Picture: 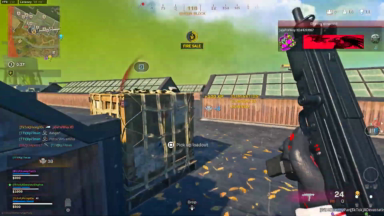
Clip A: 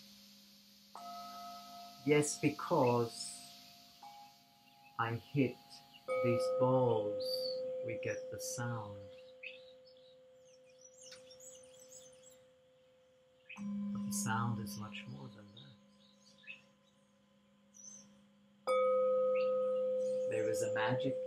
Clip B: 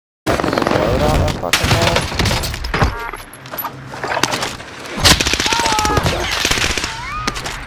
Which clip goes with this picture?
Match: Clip B